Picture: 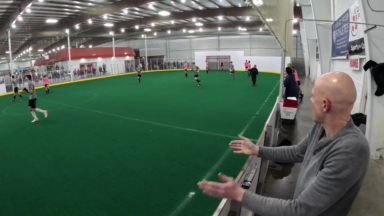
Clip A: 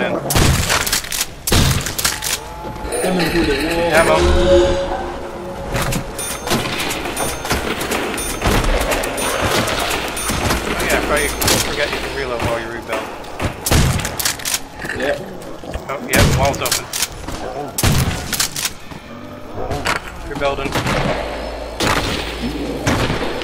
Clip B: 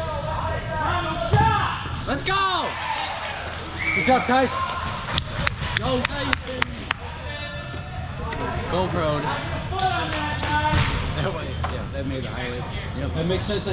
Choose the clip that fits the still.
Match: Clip B